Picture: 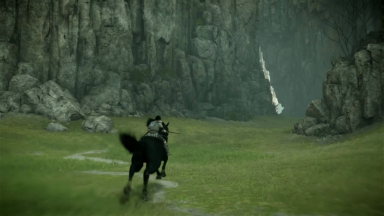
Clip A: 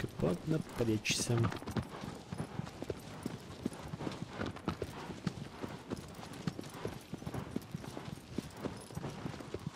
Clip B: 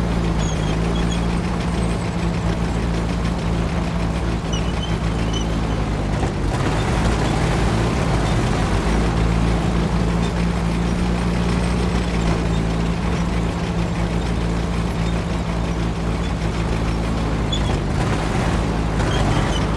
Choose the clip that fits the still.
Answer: A